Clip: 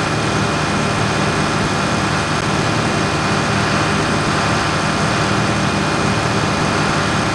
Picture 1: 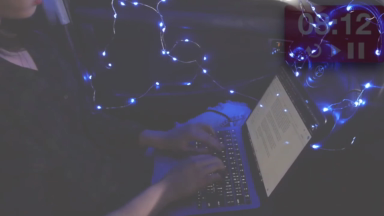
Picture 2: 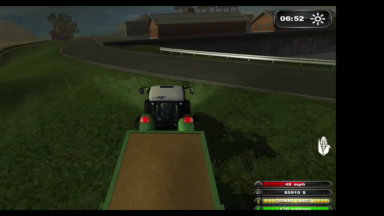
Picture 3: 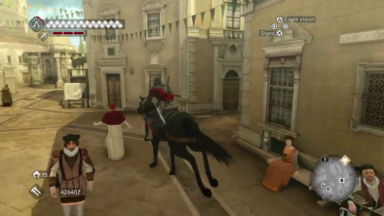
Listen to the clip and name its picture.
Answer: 2